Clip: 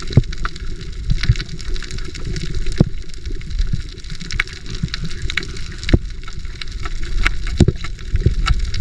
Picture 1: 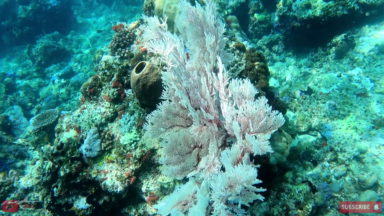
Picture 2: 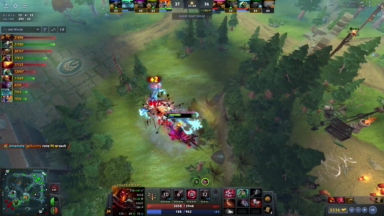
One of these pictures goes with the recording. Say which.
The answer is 1